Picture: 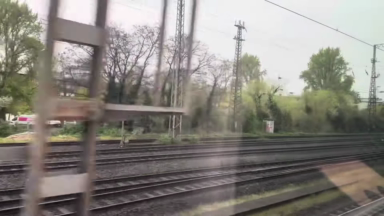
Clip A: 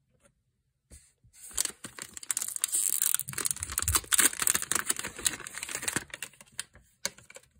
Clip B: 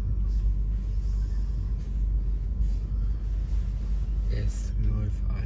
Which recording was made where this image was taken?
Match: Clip B